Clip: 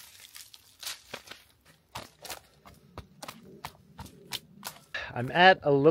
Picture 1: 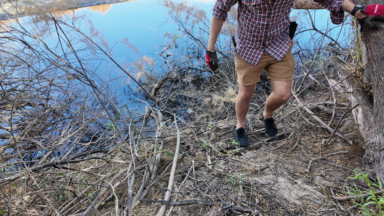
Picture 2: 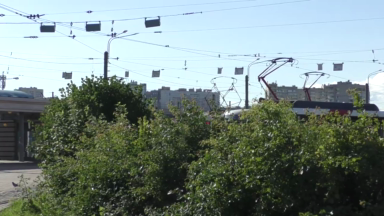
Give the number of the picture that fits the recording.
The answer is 1